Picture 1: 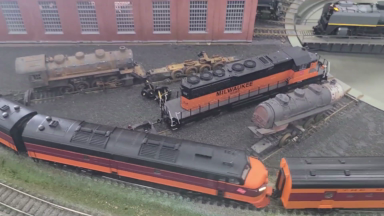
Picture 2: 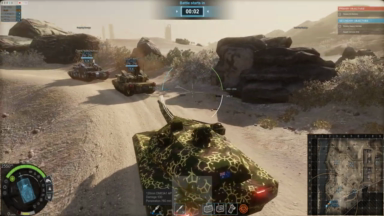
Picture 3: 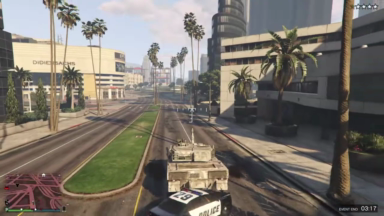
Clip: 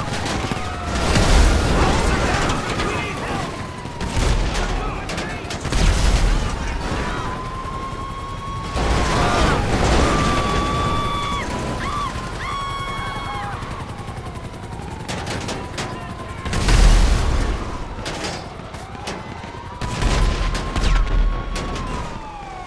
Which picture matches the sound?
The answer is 3